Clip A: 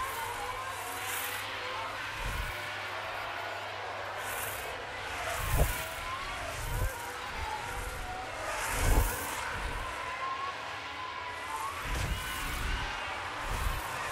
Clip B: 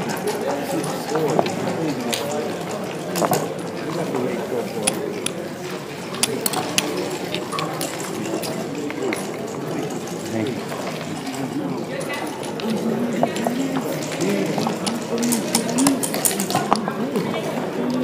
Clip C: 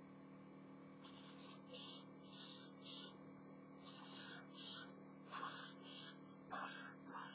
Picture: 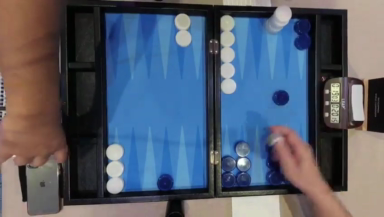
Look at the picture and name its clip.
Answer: B